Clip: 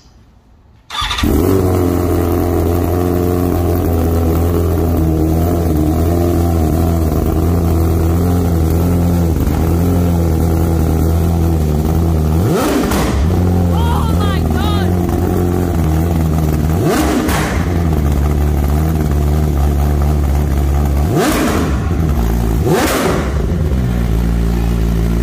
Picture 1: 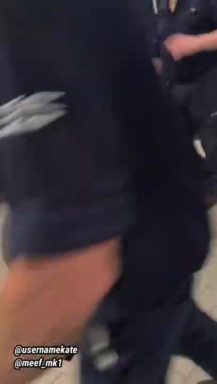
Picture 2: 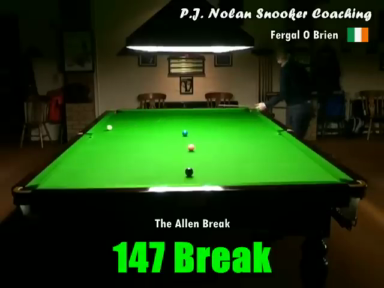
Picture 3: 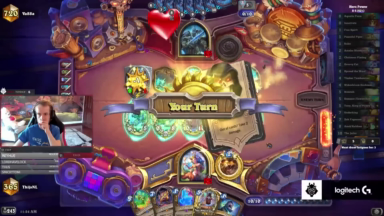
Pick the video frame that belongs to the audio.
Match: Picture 1